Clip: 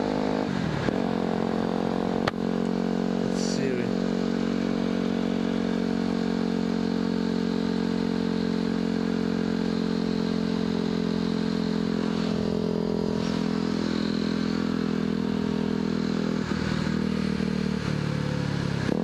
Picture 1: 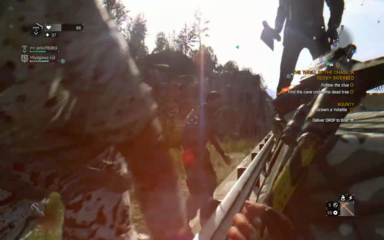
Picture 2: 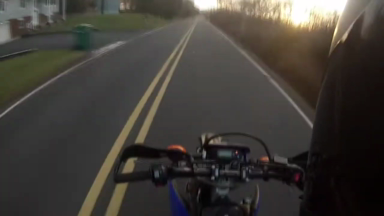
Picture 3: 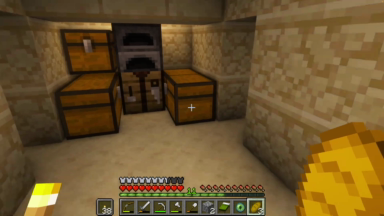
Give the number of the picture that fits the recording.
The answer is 2